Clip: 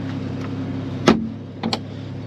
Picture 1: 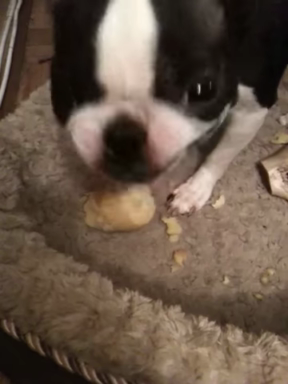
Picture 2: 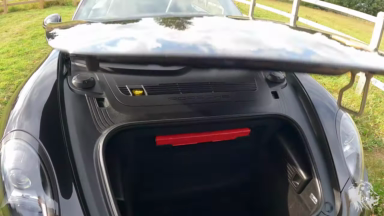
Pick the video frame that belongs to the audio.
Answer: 2